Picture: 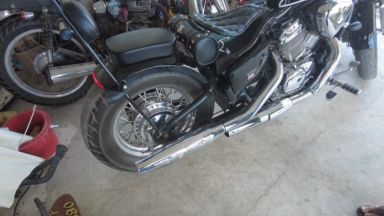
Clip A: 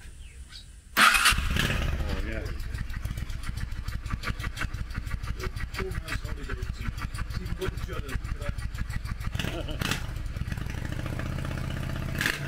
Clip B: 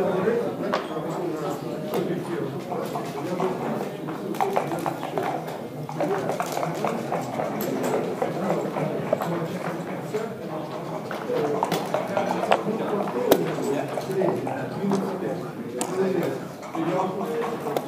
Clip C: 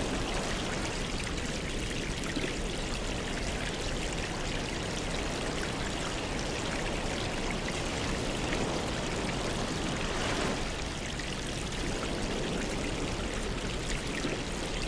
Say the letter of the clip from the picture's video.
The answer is A